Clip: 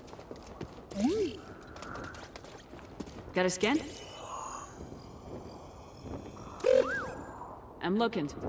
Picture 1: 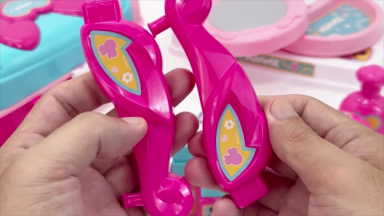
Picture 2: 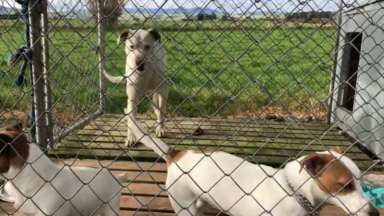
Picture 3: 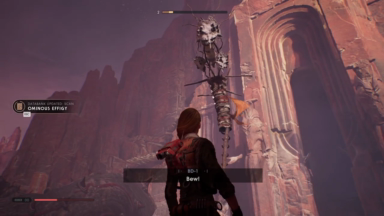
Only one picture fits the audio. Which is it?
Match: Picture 3